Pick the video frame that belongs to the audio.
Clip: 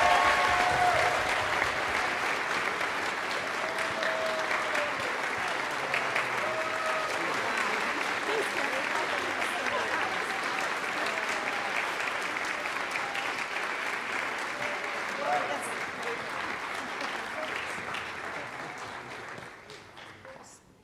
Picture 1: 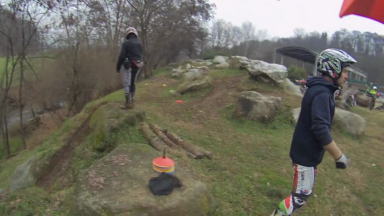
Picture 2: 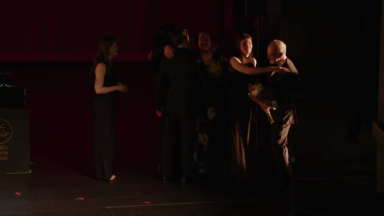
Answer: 2